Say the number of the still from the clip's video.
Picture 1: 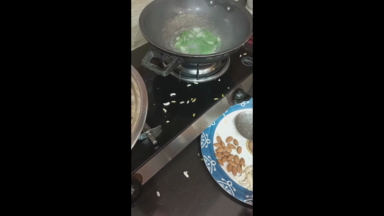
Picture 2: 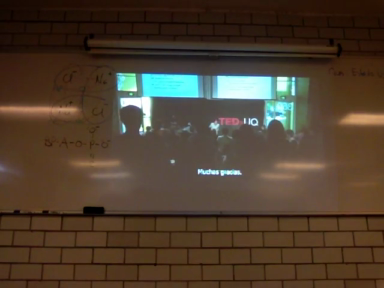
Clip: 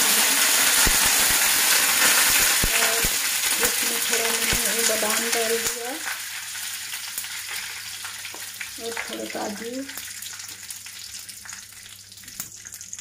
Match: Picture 1